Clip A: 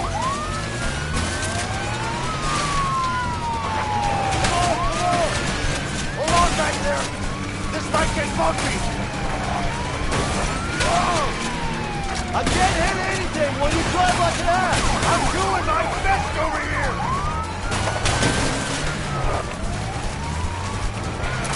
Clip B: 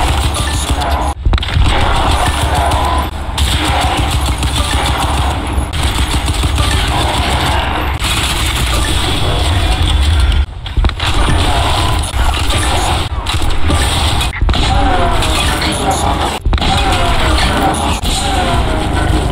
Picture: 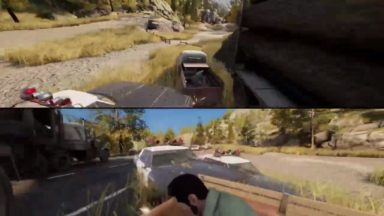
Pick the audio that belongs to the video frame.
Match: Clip A